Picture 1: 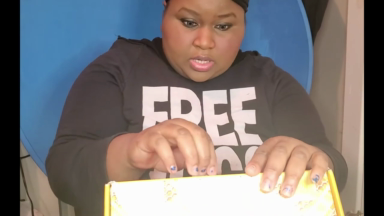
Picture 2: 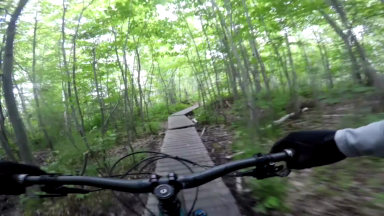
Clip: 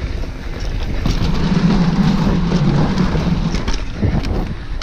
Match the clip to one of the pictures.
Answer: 2